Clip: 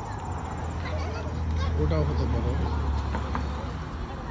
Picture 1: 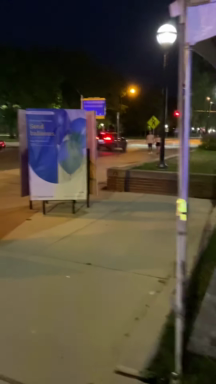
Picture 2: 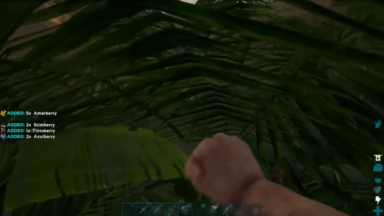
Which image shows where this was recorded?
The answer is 1